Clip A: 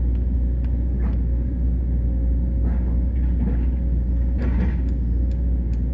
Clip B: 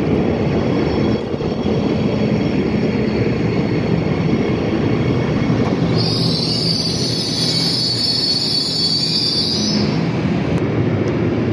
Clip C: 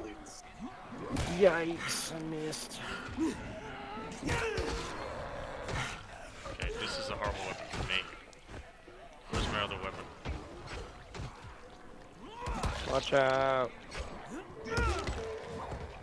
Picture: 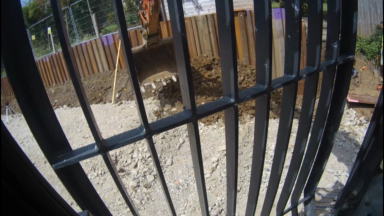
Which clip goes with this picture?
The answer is A